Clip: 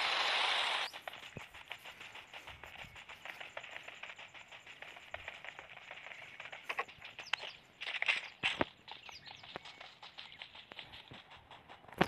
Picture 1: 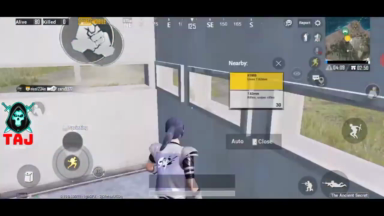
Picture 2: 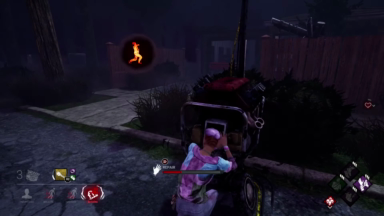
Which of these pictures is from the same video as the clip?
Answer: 1